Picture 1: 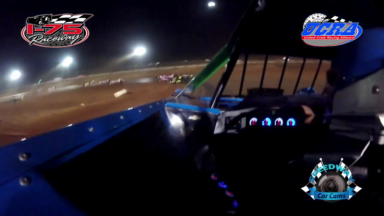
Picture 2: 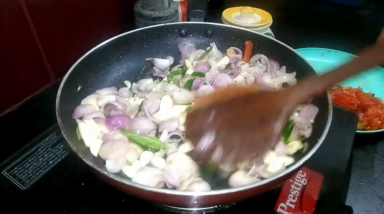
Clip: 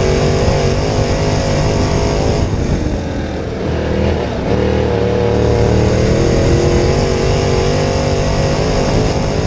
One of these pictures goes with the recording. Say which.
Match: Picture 1